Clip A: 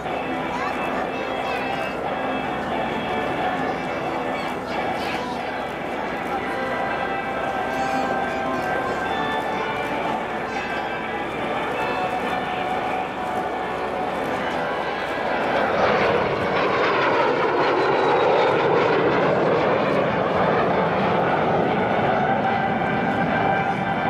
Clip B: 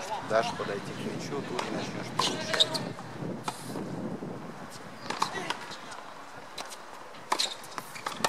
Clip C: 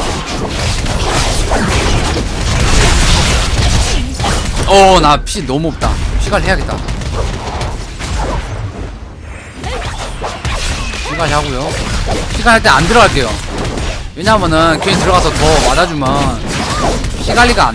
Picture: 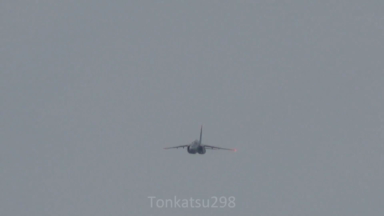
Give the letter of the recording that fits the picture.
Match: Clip A